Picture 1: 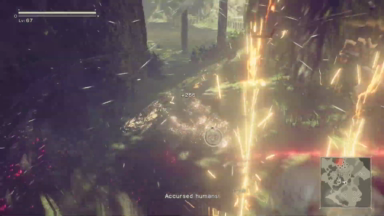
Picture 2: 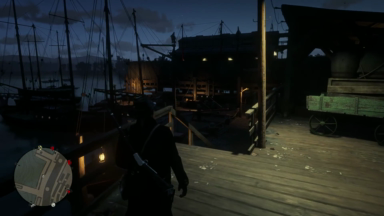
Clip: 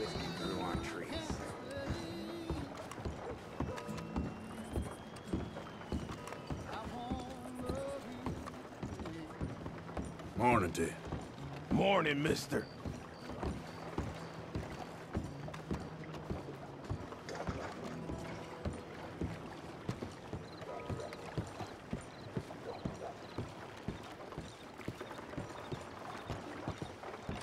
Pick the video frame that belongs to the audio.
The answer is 2